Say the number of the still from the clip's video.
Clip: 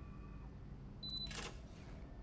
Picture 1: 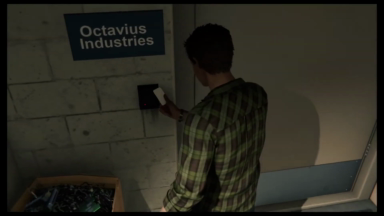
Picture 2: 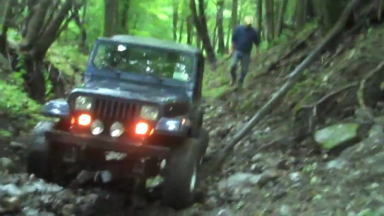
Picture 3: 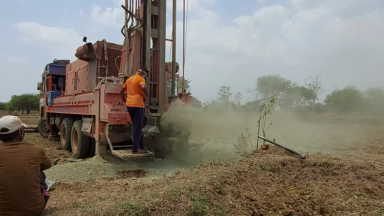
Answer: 1